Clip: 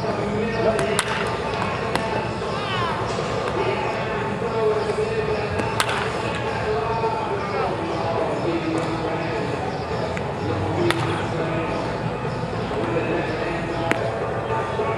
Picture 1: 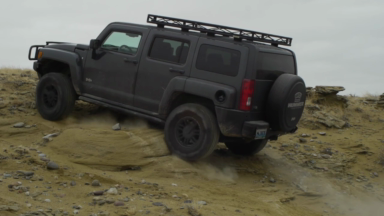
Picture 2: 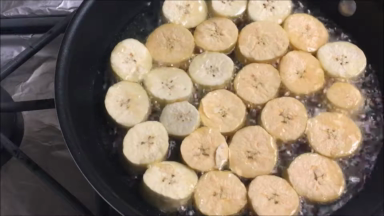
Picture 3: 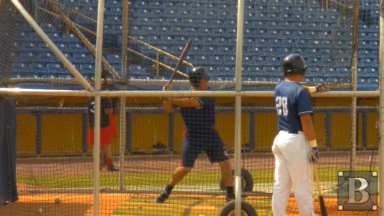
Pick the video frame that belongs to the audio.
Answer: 3